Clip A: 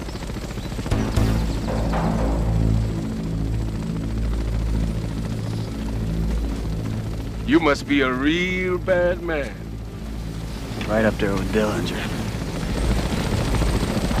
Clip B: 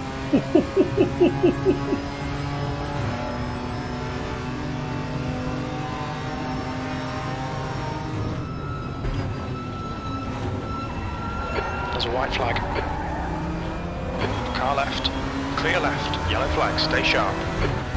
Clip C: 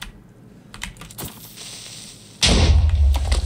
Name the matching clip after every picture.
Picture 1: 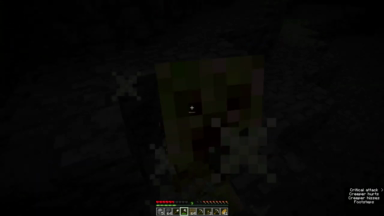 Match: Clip C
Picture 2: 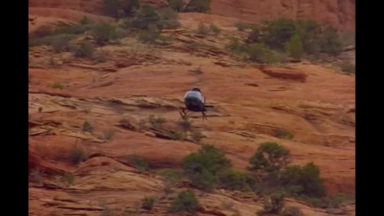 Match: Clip A